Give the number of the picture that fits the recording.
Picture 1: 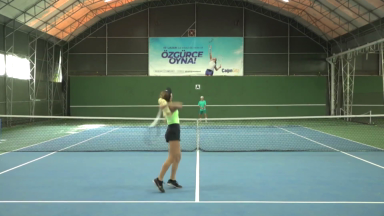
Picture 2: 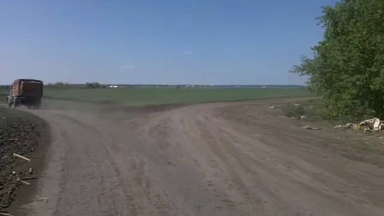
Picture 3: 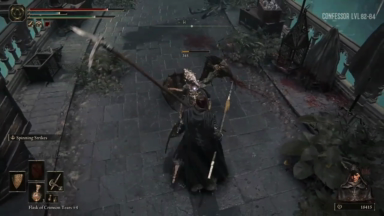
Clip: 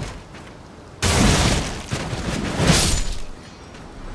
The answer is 3